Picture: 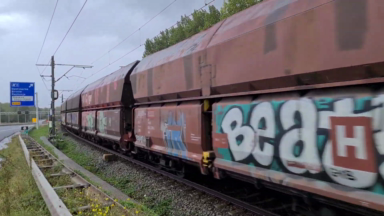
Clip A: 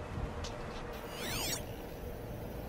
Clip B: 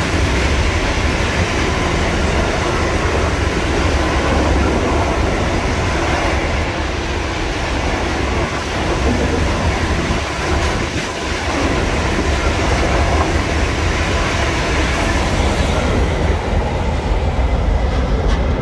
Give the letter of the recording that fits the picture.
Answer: B